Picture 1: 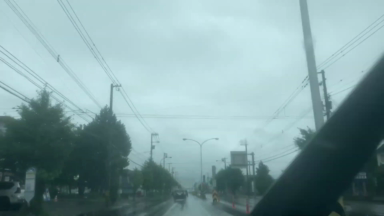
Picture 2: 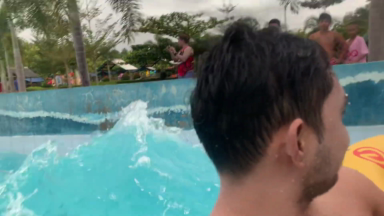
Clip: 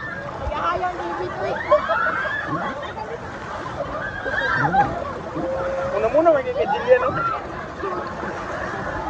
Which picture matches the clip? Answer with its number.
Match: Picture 2